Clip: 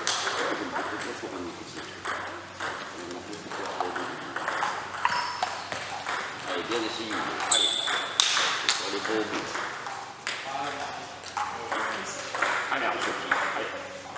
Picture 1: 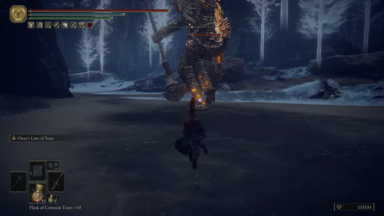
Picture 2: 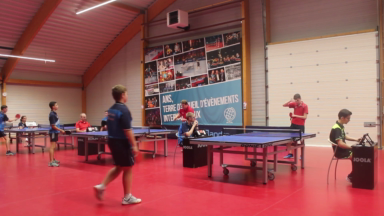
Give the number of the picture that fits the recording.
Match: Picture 2